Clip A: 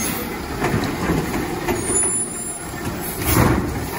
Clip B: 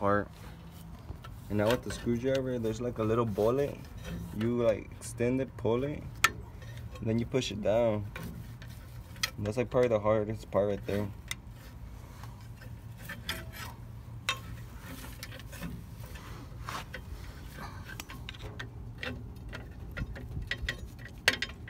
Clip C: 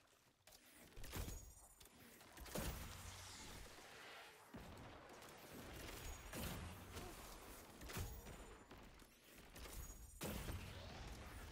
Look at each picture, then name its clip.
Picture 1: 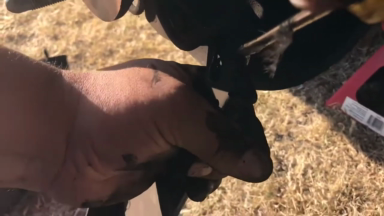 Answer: B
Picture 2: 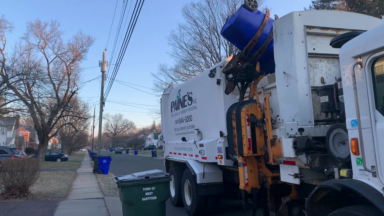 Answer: A